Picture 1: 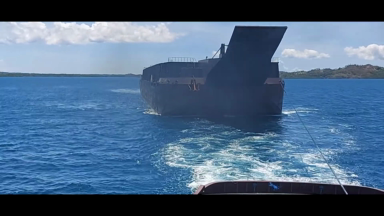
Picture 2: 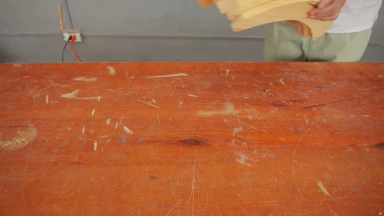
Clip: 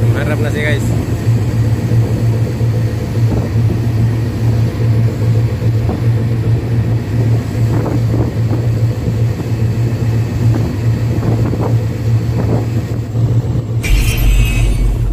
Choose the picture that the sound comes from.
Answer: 1